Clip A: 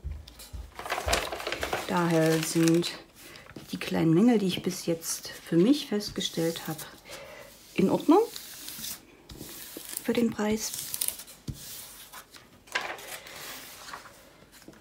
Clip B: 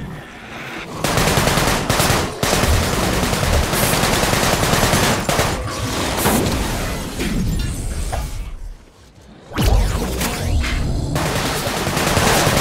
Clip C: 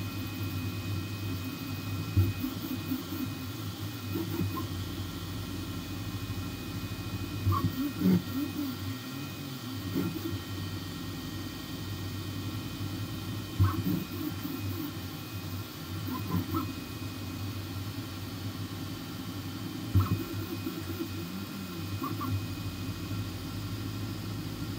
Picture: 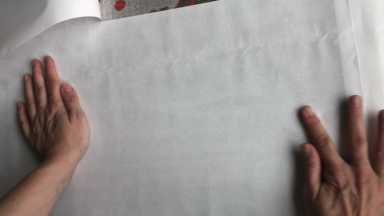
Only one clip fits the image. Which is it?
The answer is A